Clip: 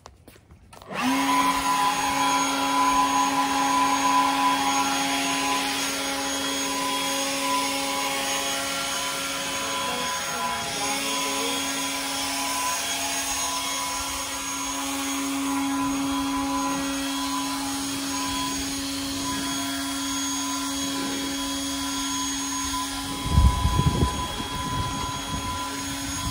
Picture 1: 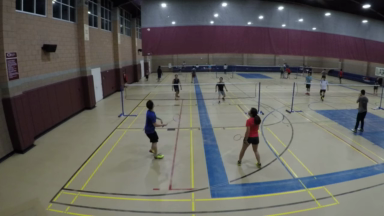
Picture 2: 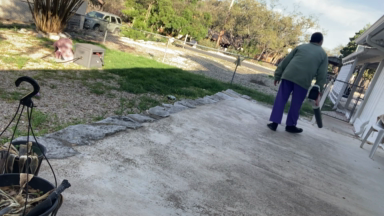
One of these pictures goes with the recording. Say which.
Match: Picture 2